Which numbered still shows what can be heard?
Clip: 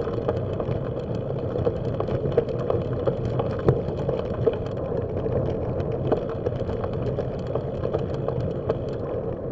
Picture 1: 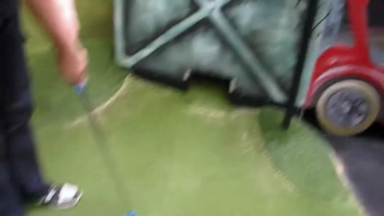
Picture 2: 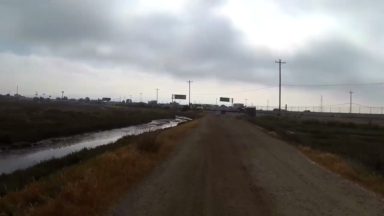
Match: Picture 2